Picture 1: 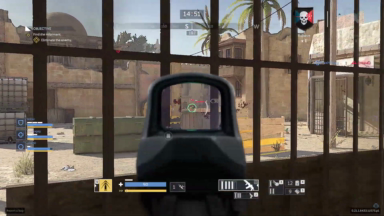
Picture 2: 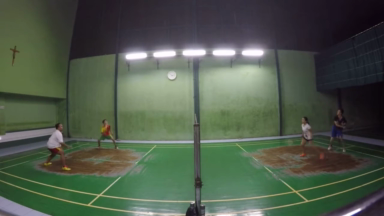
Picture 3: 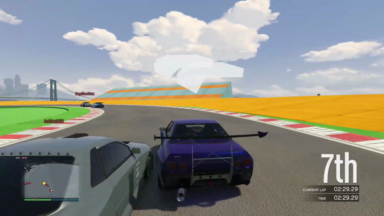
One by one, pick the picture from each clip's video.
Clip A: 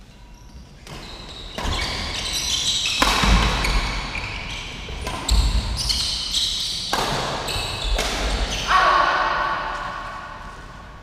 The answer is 2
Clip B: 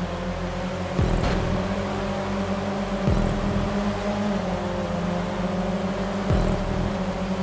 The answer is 3